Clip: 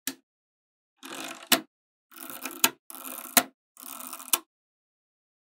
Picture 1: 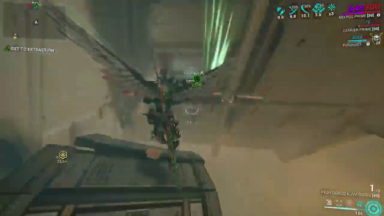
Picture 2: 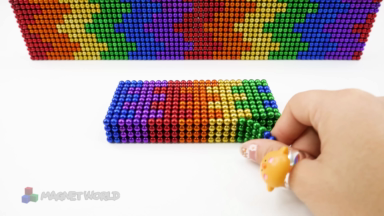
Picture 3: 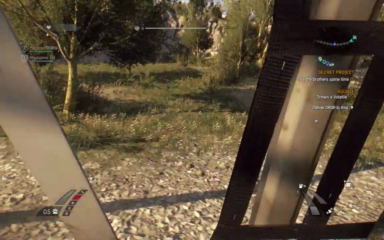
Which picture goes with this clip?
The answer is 2